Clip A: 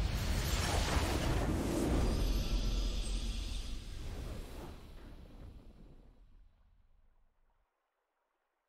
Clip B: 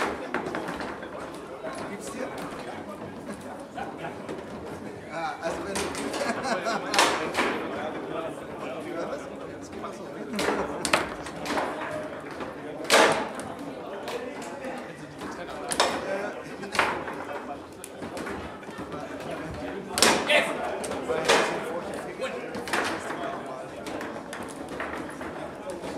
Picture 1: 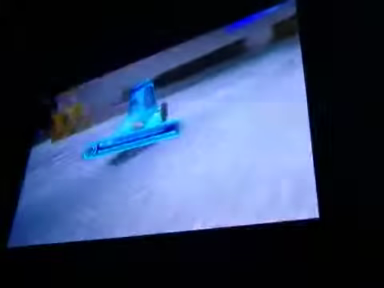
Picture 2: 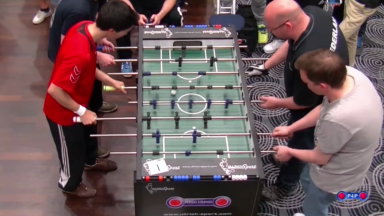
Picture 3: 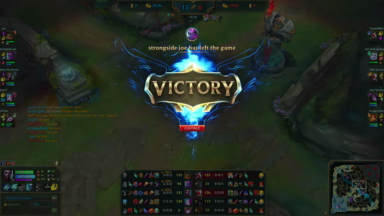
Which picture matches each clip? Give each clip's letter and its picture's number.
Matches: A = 3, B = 2